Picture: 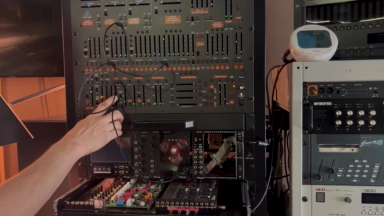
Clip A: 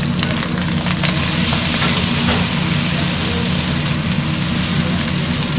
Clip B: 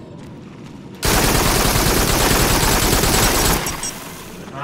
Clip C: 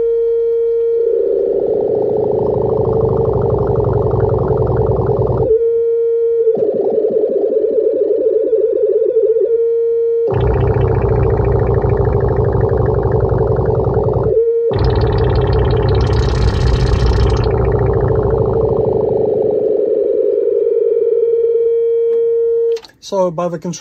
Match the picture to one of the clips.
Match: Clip C